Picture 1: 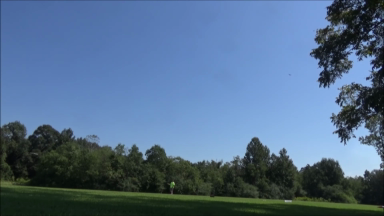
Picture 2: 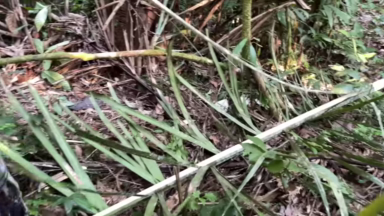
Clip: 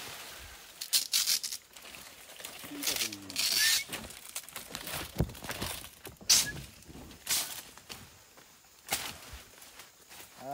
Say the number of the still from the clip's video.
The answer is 2